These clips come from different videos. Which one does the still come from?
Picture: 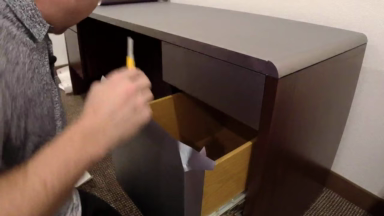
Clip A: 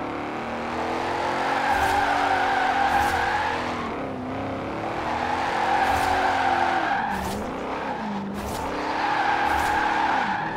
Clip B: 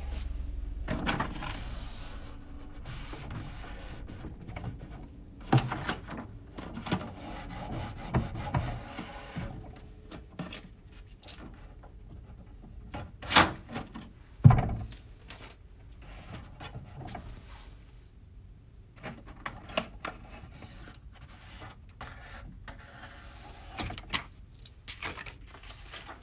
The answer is B